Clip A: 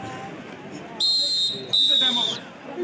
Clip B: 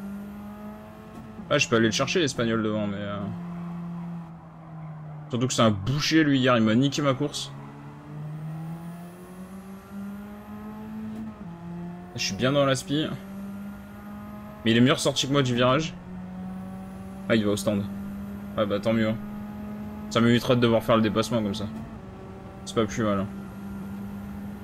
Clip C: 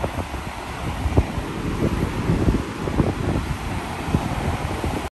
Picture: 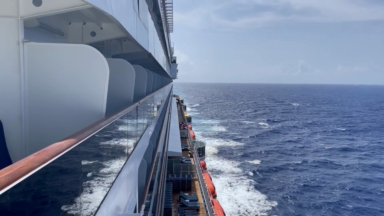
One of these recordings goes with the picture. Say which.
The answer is C